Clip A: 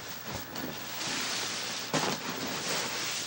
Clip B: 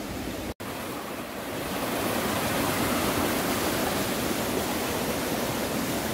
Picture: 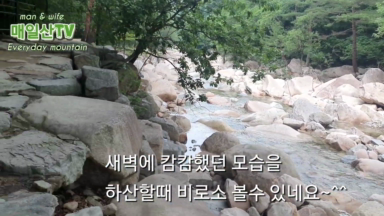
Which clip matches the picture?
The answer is B